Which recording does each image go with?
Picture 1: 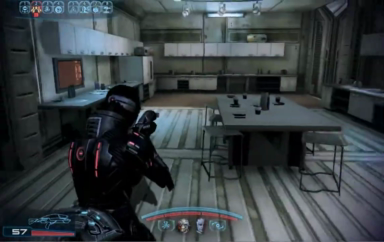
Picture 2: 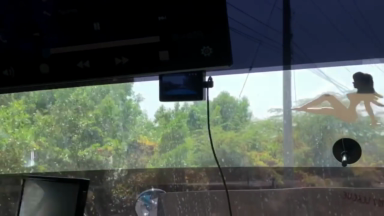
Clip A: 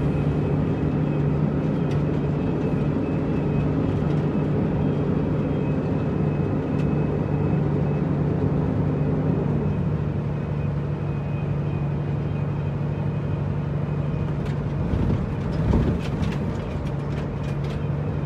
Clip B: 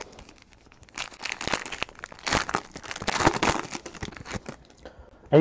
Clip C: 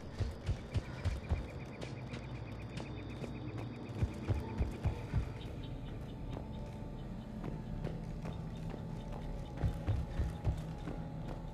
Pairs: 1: C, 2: A